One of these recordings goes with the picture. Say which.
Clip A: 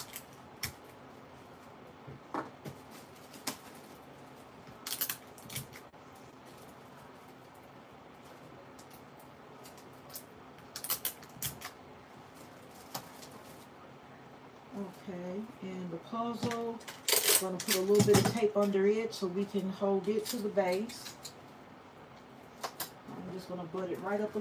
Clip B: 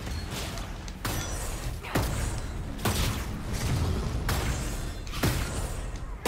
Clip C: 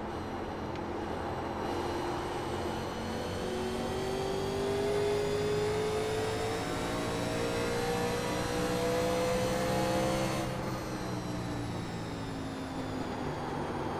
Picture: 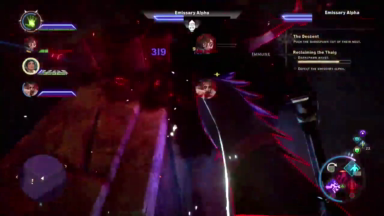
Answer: B